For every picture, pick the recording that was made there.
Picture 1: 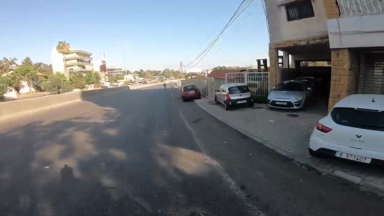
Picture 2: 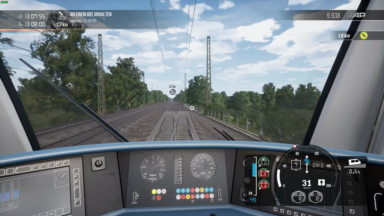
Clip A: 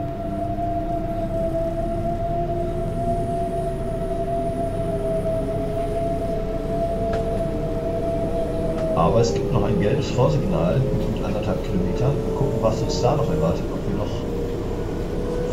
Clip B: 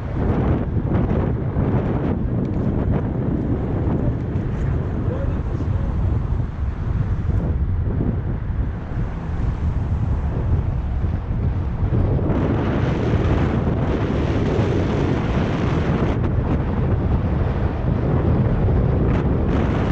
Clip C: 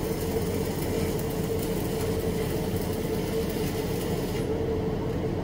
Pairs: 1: B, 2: A